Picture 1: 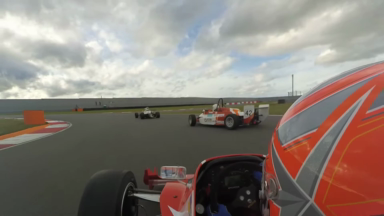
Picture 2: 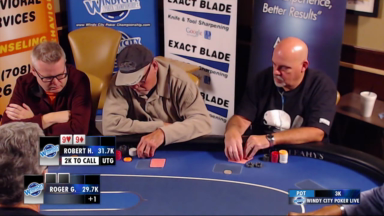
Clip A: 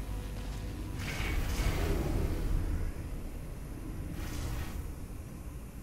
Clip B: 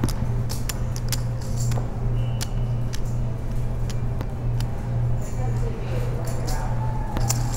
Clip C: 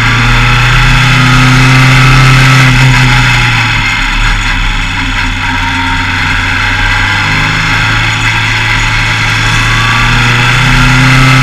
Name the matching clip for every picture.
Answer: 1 C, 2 B